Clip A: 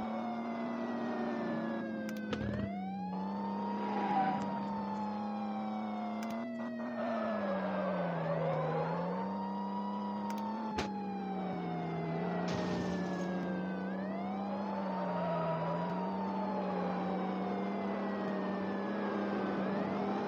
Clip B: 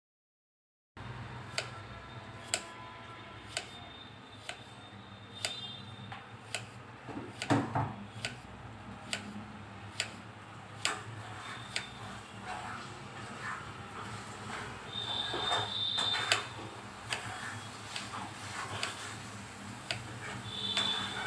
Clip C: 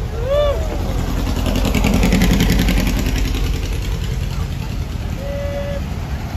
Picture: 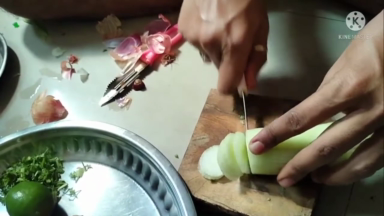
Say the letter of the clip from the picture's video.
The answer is B